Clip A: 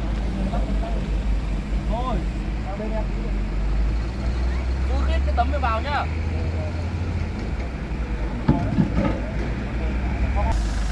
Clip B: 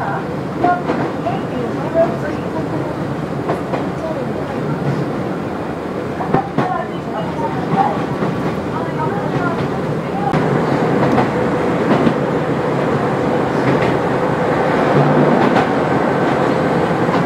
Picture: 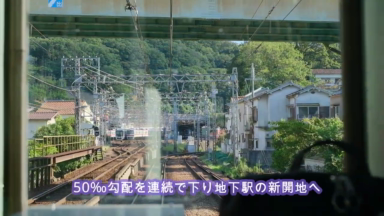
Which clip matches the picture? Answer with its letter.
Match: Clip B